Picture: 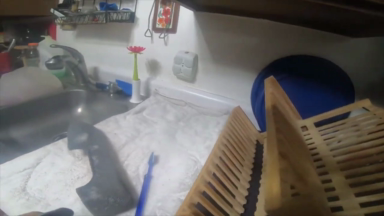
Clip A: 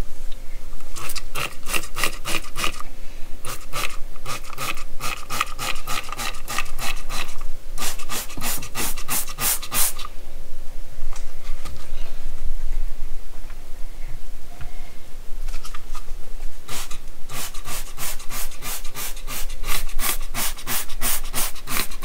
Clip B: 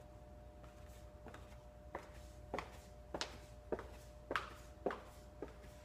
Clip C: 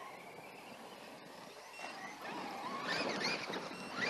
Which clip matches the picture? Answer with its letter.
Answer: A